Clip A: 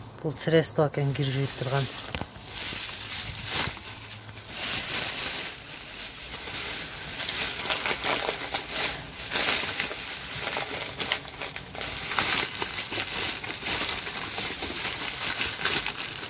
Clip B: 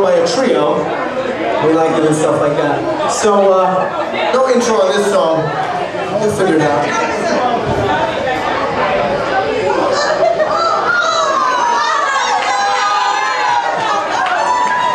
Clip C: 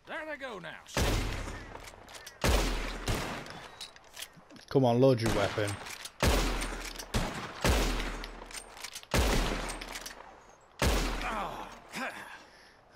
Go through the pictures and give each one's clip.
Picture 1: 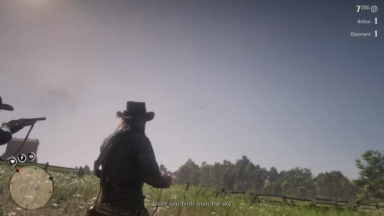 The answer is C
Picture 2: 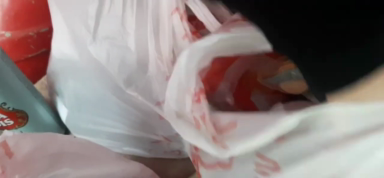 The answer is A